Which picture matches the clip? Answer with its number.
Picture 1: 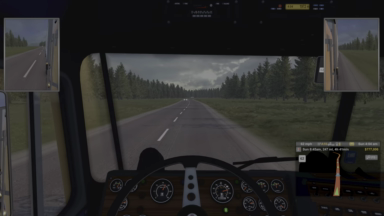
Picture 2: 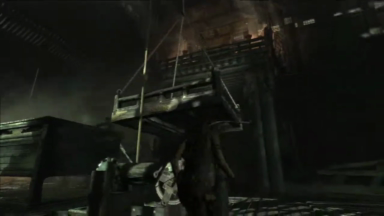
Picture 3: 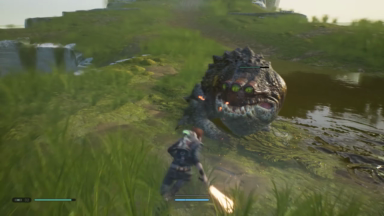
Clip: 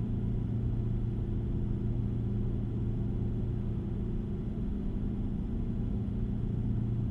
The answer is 1